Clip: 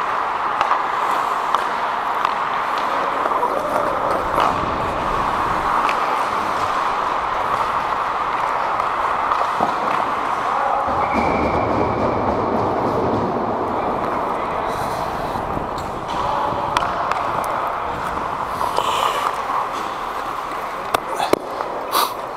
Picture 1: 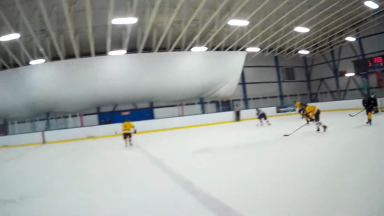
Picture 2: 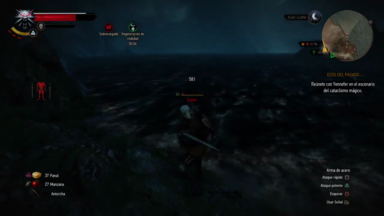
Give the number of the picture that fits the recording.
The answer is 1